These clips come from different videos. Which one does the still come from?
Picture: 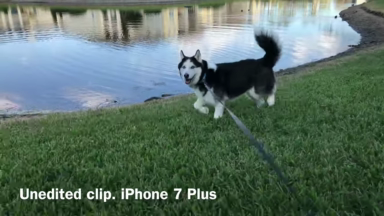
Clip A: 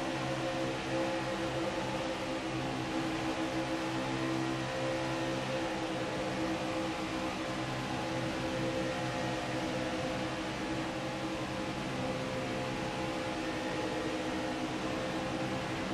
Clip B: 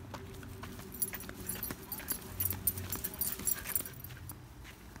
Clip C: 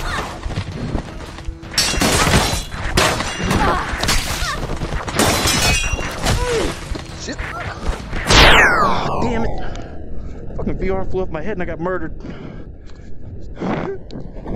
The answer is B